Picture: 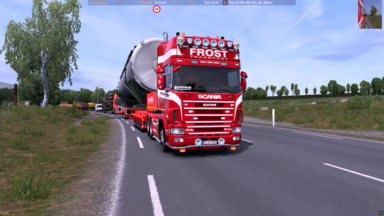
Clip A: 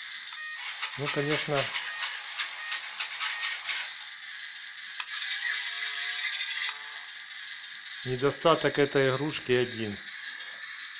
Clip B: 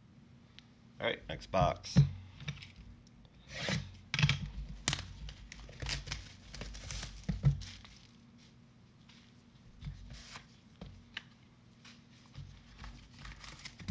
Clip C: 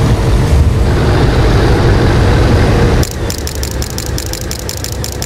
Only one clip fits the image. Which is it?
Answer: C